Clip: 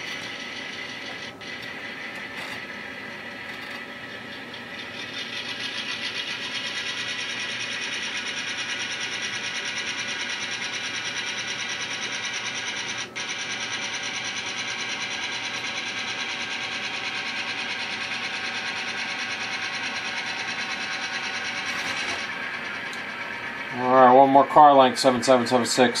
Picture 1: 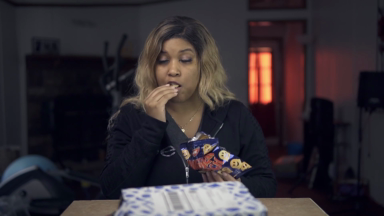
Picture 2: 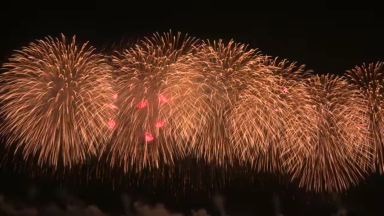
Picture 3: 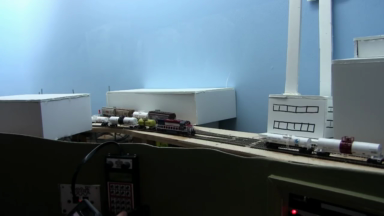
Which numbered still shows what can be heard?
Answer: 3